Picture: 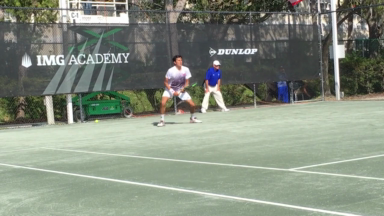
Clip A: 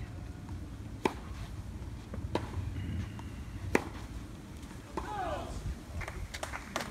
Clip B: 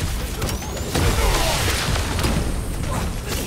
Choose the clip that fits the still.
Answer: A